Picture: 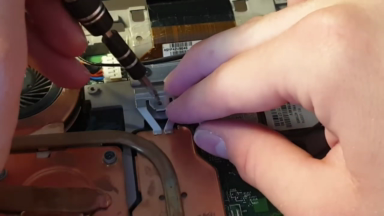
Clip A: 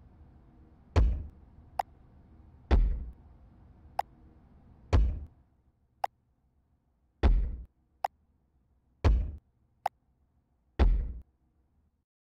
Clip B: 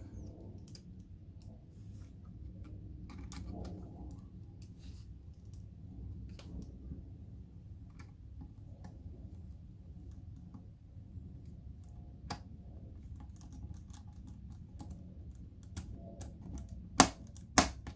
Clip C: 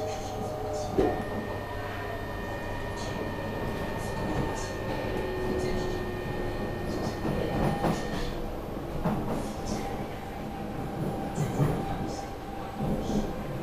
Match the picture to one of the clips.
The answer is B